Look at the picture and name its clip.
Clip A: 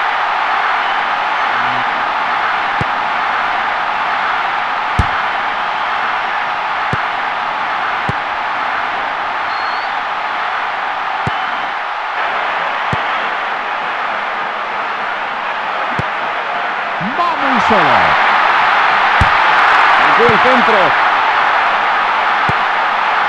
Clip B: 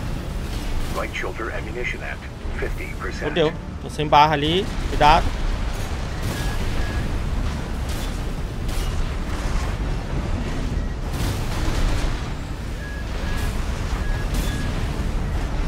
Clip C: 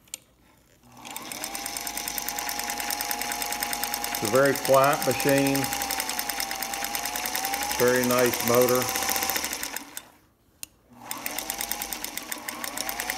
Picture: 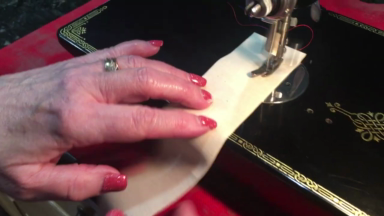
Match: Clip C